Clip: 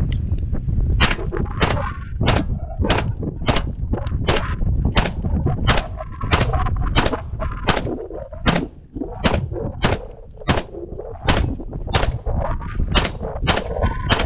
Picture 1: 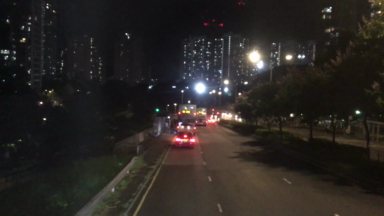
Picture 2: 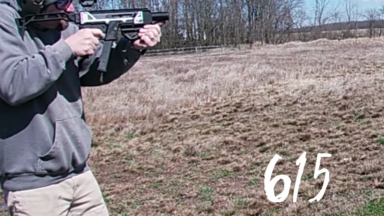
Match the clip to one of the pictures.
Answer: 2